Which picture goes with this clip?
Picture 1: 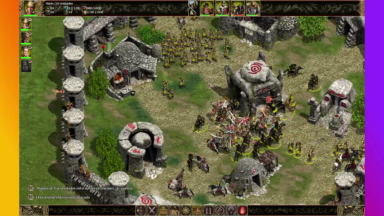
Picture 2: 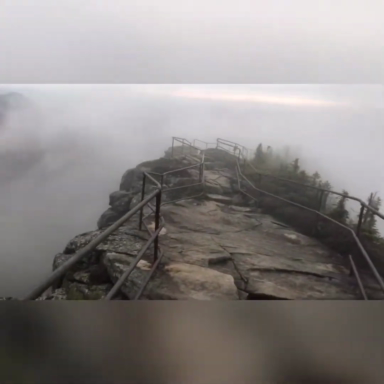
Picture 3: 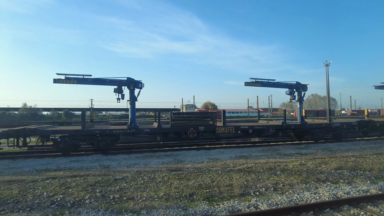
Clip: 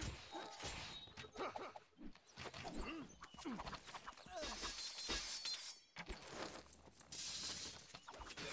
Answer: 1